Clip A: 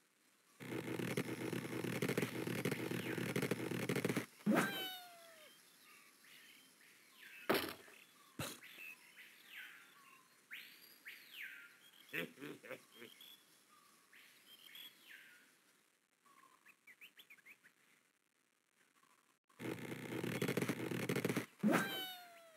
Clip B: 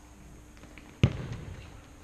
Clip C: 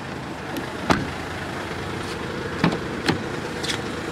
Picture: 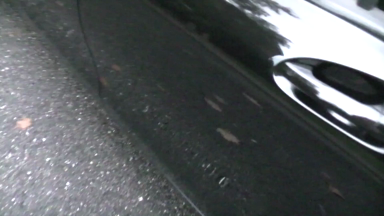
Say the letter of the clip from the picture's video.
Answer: C